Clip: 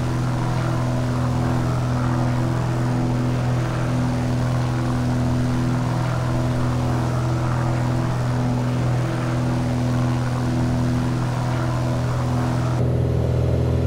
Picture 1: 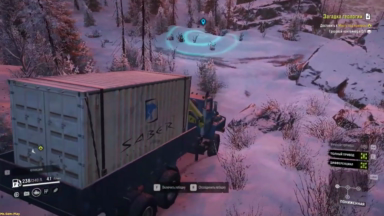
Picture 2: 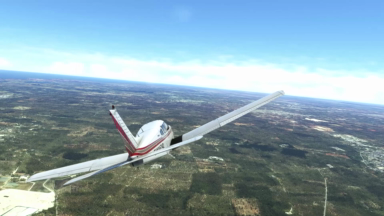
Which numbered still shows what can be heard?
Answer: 2